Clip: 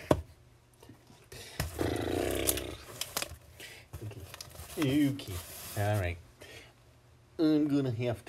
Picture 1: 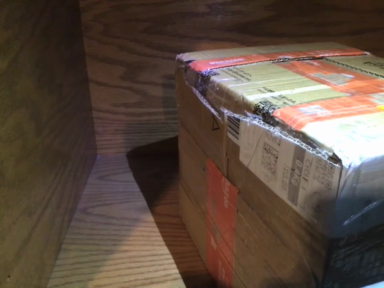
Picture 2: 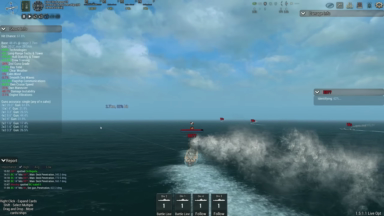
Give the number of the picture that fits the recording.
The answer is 1